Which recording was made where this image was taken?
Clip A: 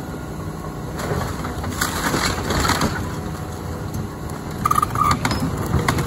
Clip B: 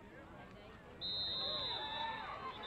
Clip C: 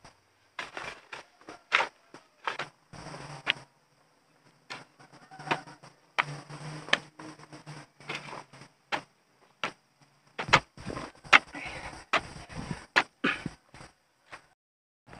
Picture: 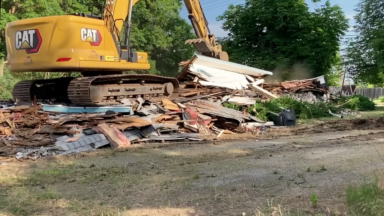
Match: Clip A